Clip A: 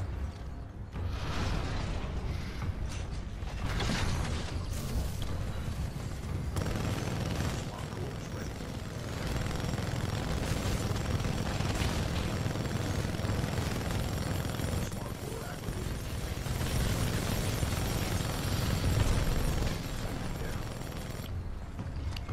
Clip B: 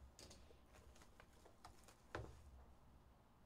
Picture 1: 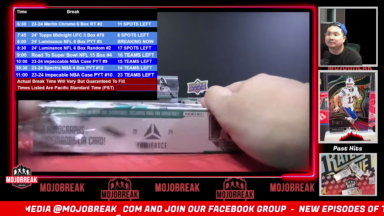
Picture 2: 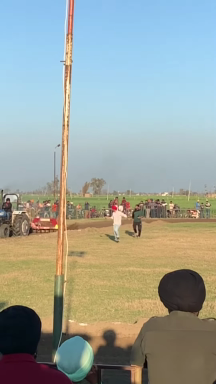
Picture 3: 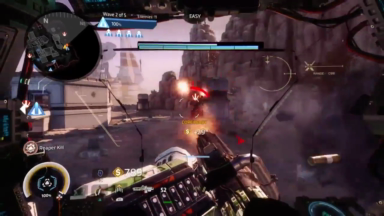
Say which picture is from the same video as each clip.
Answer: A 3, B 1